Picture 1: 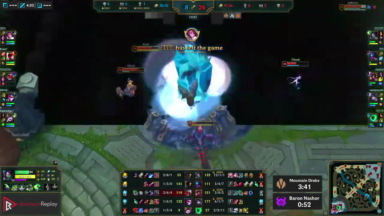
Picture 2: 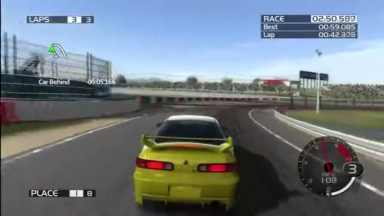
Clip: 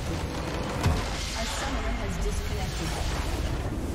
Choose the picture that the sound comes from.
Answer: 1